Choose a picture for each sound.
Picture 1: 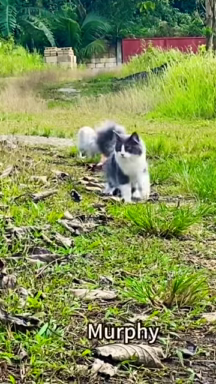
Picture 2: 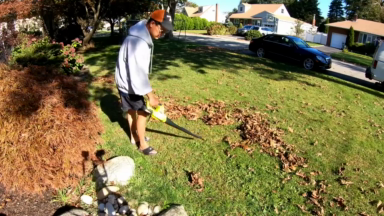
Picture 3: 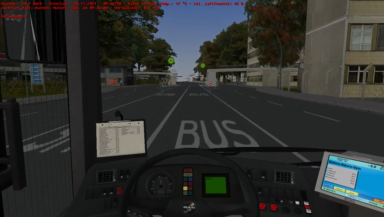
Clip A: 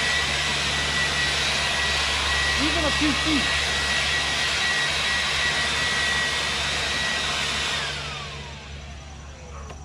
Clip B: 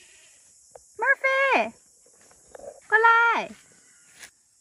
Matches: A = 2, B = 1